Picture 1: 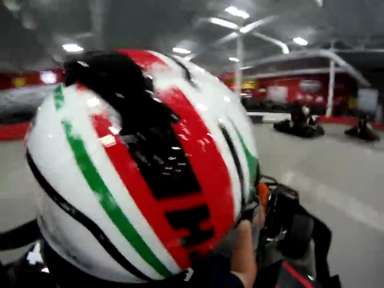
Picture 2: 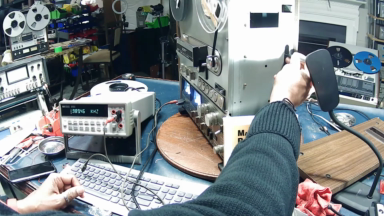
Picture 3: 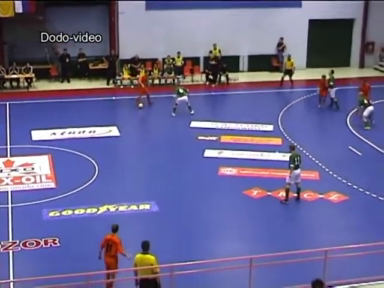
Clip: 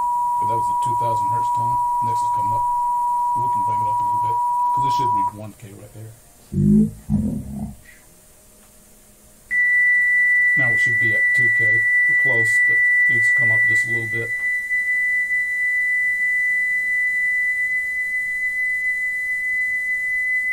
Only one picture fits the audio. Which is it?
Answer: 2